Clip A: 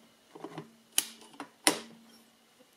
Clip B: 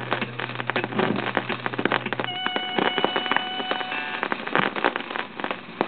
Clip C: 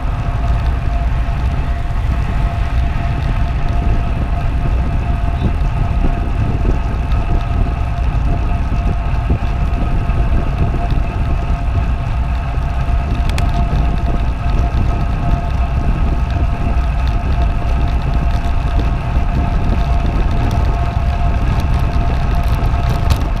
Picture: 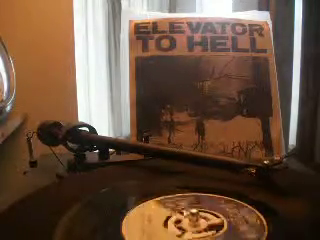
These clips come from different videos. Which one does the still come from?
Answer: B